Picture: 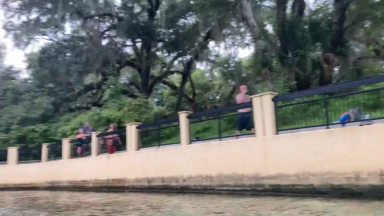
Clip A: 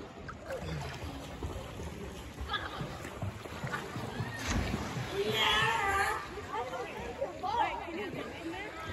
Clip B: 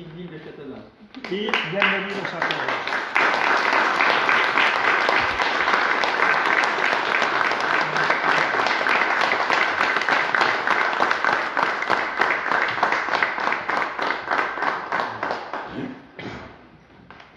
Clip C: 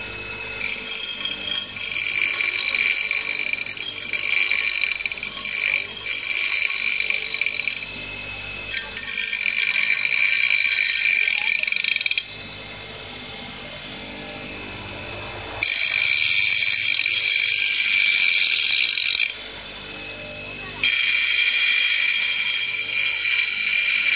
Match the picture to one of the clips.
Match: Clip A